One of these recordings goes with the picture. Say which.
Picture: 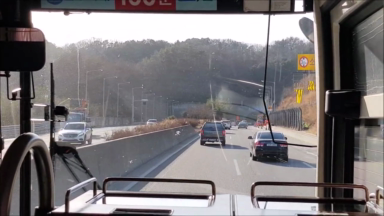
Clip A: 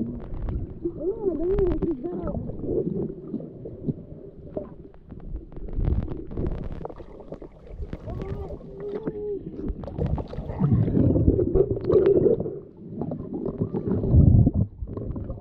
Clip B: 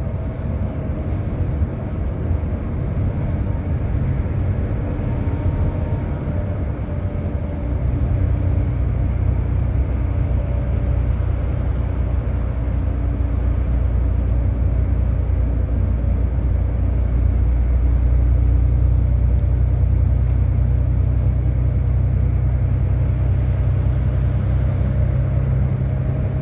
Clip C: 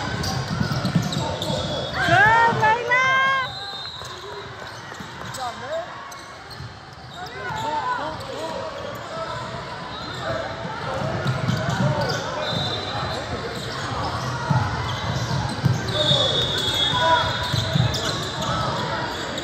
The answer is B